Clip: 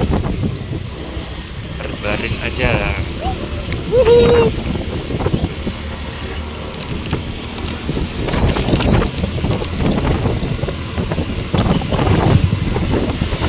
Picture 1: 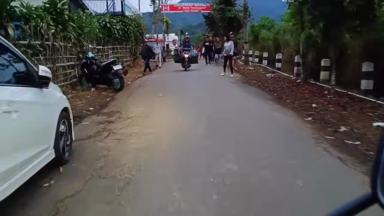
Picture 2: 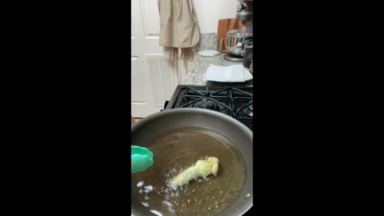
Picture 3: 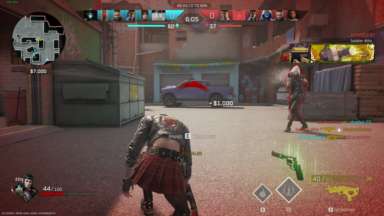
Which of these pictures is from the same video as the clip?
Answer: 1